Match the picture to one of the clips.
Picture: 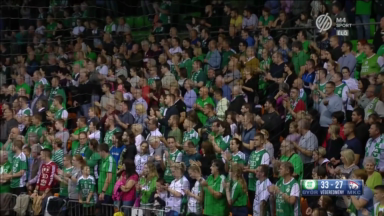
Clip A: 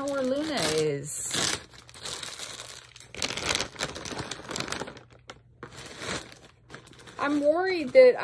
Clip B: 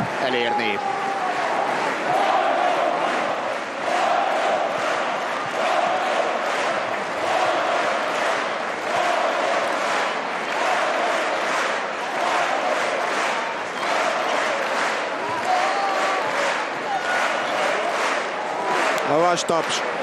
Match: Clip B